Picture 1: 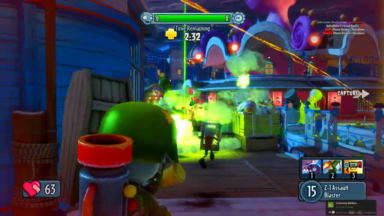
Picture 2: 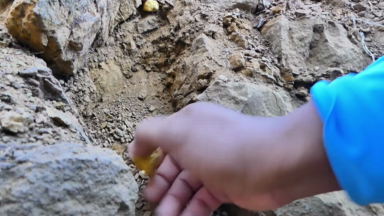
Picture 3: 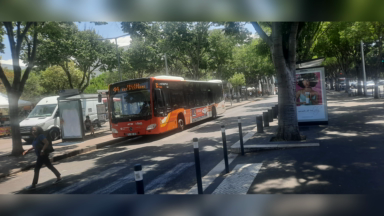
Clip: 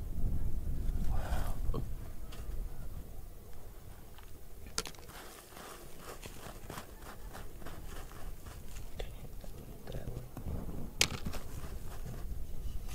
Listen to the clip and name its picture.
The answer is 2